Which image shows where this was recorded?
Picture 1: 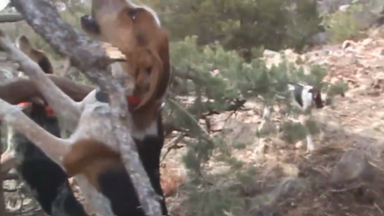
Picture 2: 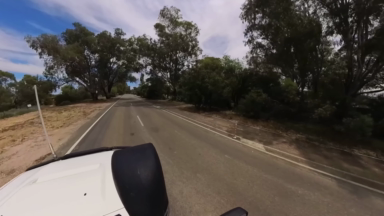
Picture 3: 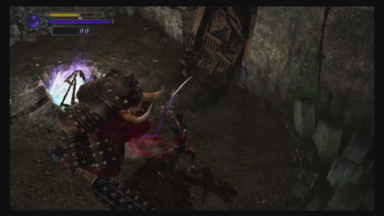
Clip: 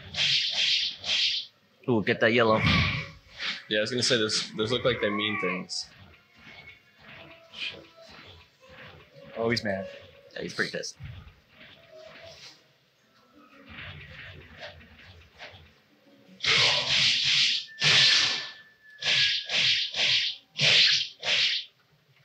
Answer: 3